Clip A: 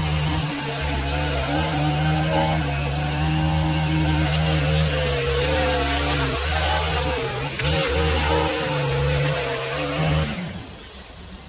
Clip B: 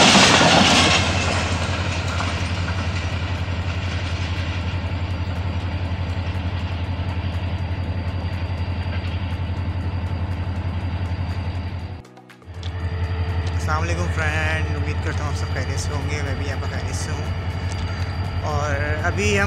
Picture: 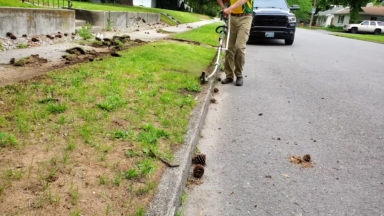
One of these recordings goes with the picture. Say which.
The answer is A